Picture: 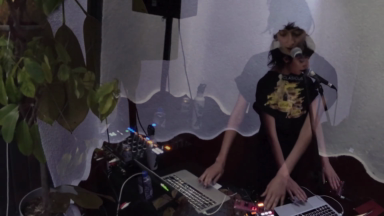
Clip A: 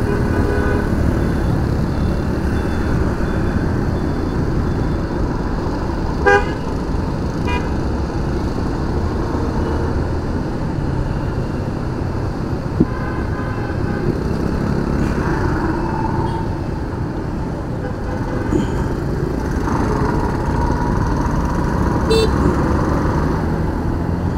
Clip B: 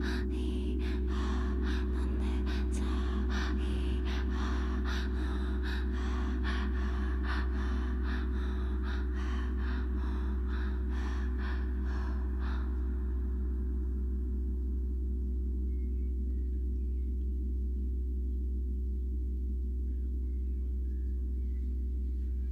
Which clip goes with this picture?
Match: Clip B